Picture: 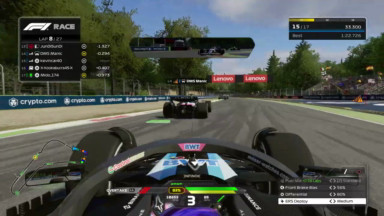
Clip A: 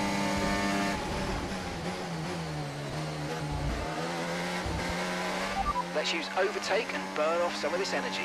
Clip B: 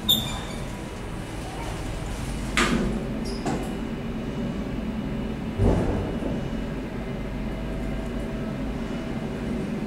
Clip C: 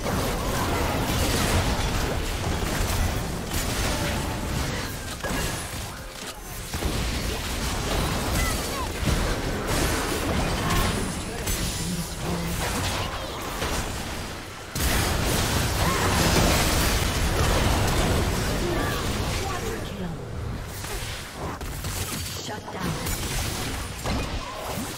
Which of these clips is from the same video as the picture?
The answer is A